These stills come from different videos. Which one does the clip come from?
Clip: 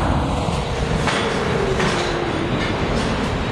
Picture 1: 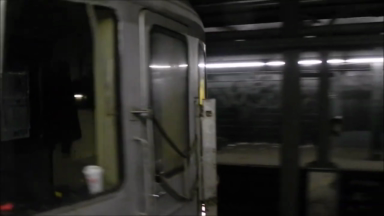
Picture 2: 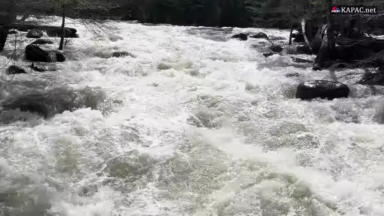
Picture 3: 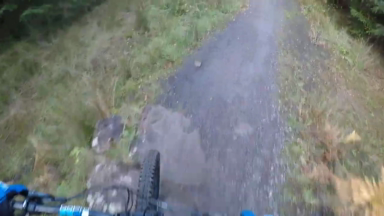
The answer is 1